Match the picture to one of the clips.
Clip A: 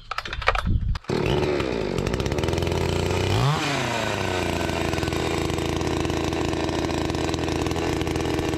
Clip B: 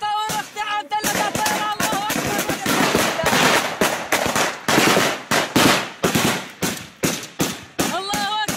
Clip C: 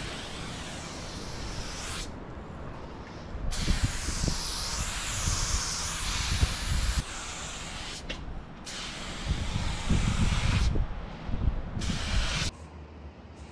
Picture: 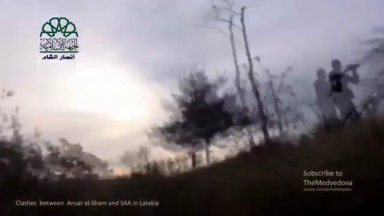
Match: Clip B